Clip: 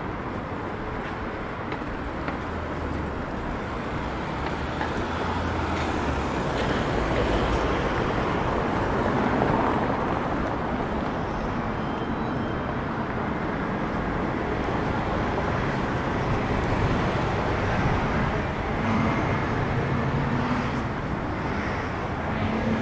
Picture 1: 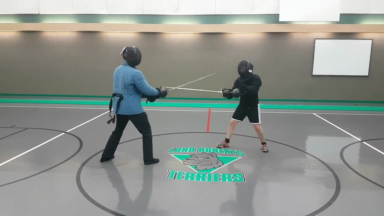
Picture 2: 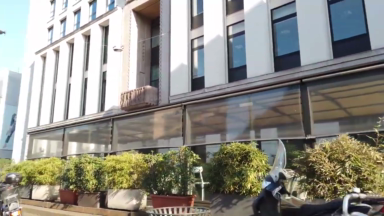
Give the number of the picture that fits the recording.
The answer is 2